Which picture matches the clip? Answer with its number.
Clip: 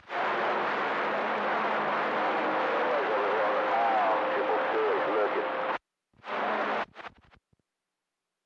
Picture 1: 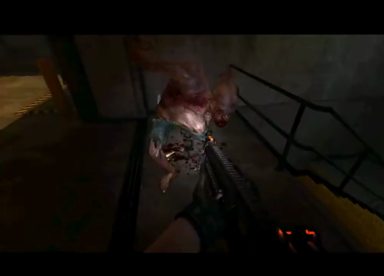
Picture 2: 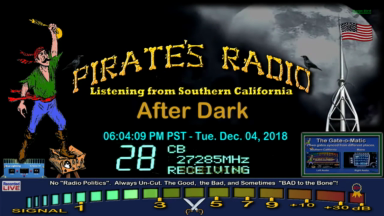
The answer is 2